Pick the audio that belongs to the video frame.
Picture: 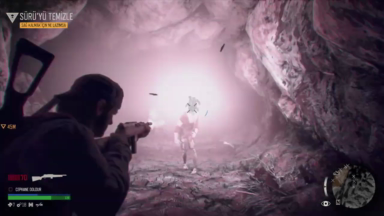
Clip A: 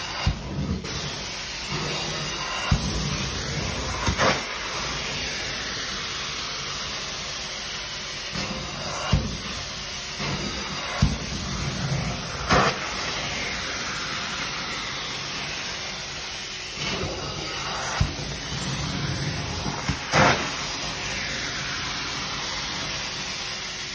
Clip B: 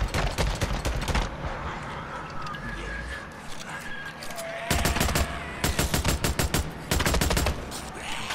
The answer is B